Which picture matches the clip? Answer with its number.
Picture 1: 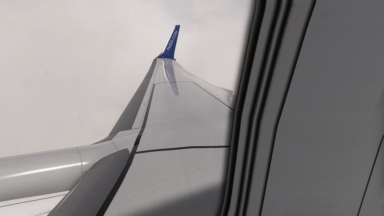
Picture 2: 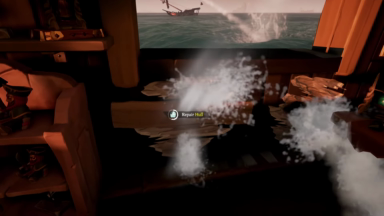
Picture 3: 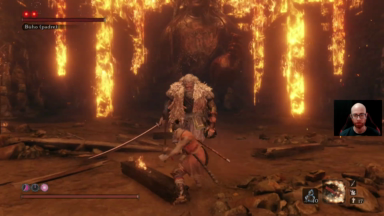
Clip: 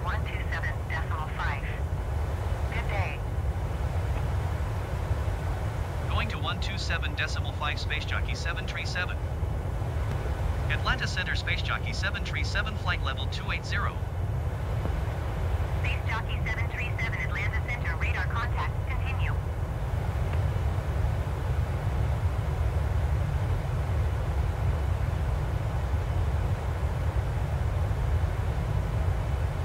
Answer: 1